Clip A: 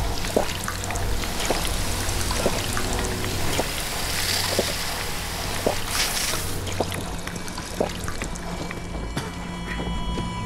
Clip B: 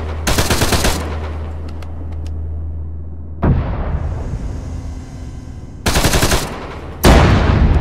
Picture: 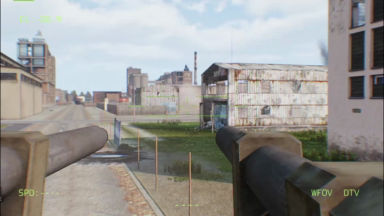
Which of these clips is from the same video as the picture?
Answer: B